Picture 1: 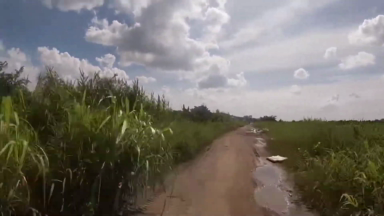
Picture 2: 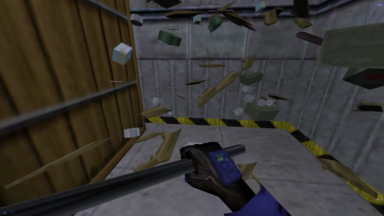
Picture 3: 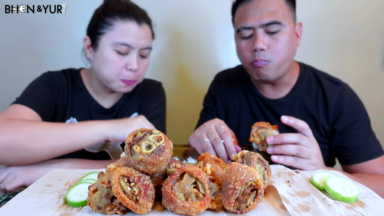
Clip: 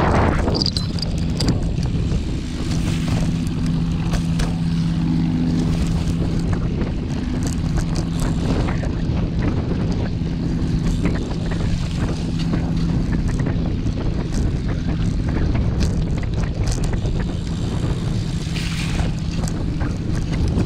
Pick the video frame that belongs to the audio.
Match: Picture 1